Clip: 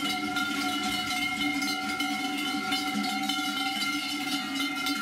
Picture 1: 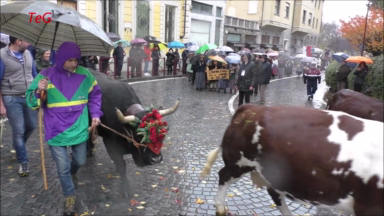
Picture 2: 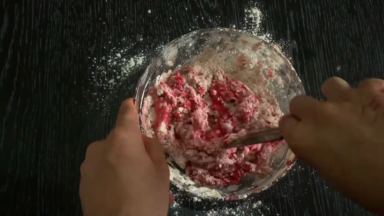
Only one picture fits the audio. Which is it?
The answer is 1